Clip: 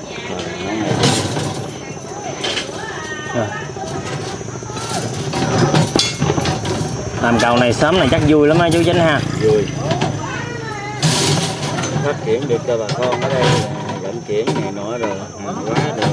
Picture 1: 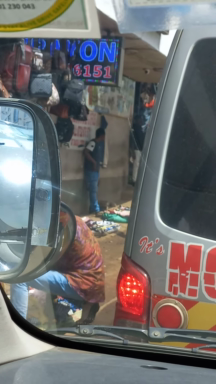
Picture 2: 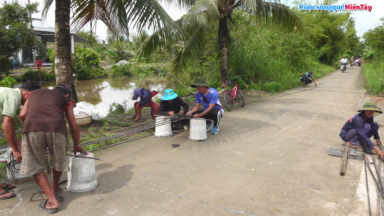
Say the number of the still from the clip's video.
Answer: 2